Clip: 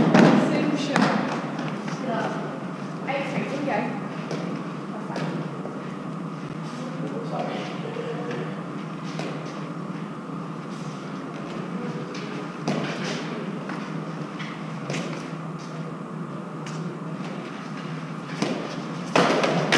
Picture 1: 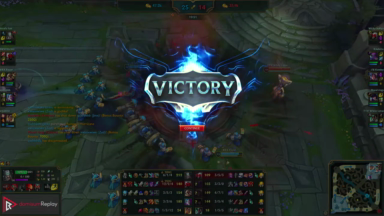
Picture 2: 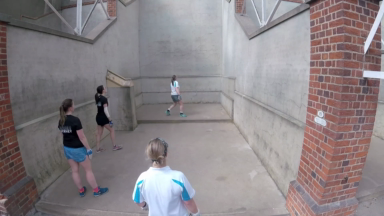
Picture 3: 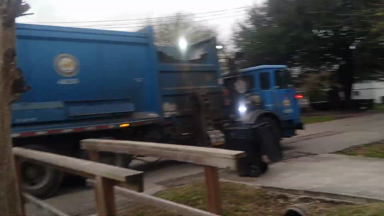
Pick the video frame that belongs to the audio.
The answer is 2